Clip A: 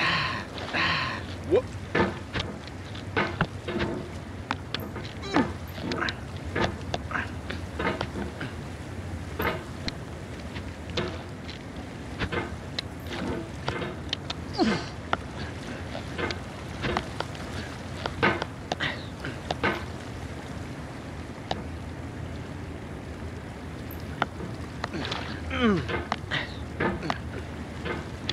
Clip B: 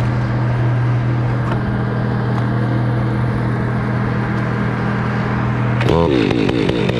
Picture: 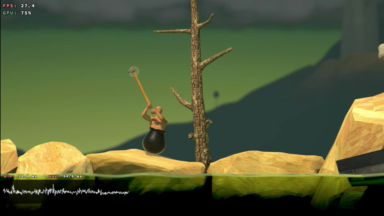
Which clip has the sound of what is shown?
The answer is A